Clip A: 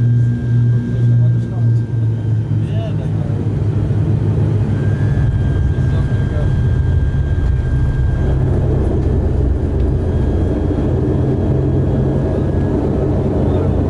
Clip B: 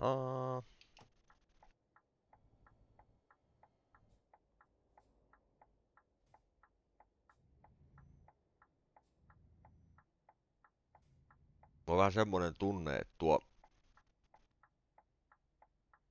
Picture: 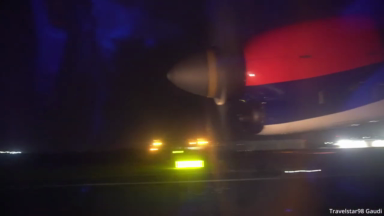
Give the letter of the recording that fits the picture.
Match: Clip A